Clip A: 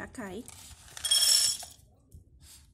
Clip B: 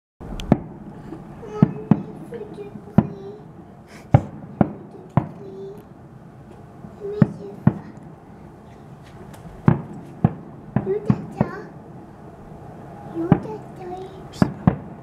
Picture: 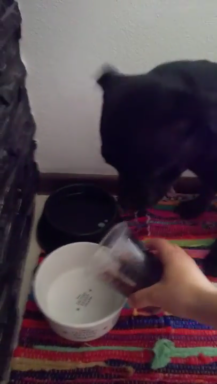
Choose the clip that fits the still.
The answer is A